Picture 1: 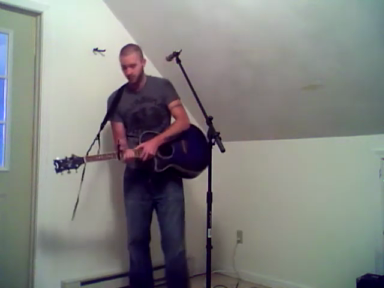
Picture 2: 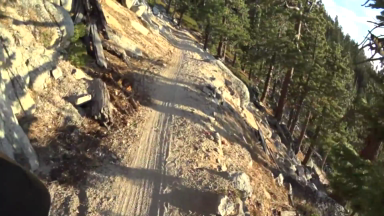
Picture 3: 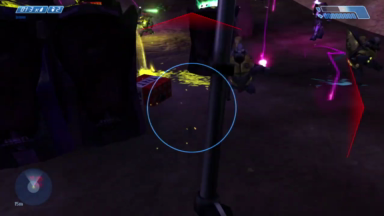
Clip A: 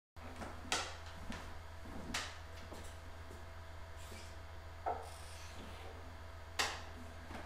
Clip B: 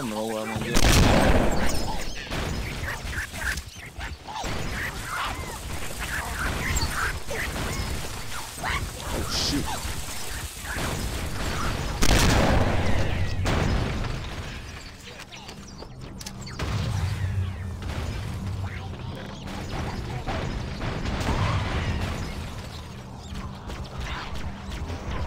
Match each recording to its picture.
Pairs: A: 1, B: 3